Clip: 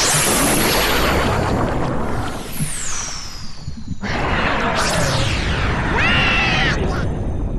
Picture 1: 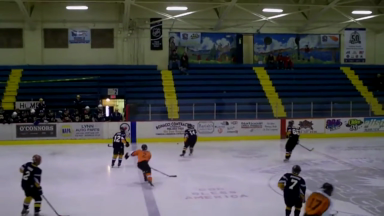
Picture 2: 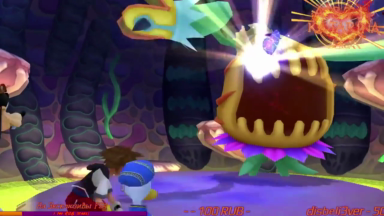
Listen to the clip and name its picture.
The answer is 2